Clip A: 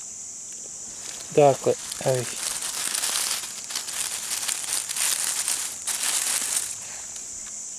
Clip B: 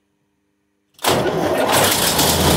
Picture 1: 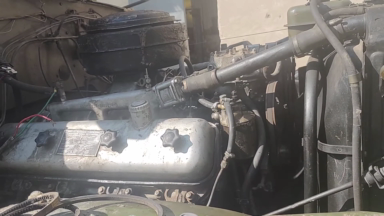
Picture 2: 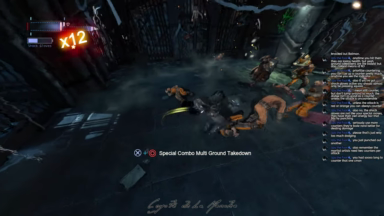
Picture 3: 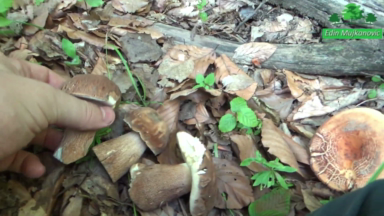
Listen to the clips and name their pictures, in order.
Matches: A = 3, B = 1